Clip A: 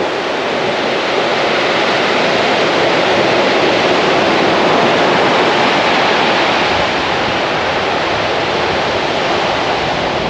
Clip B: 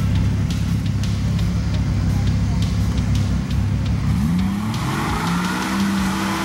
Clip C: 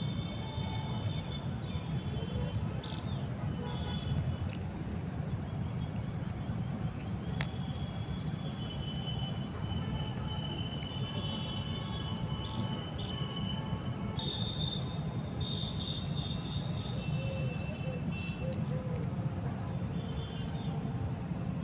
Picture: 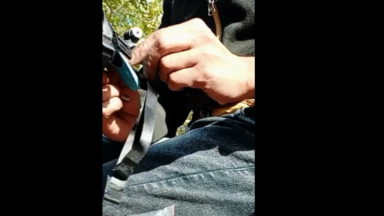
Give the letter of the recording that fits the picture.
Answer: C